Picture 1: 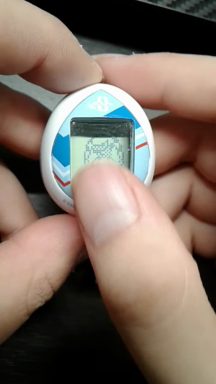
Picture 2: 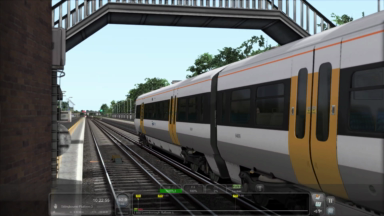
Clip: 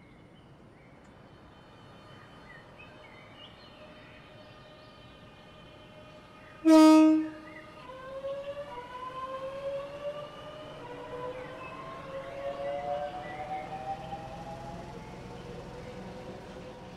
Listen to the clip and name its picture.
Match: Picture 2